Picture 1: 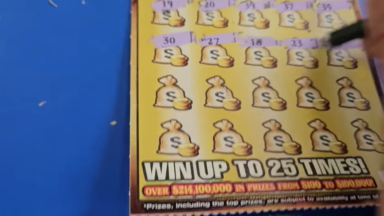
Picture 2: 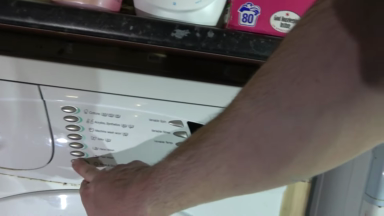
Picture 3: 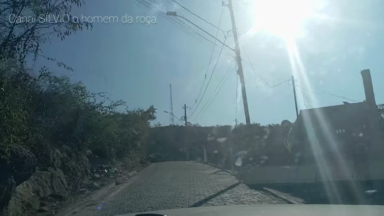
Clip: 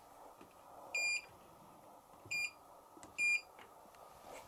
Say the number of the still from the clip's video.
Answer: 2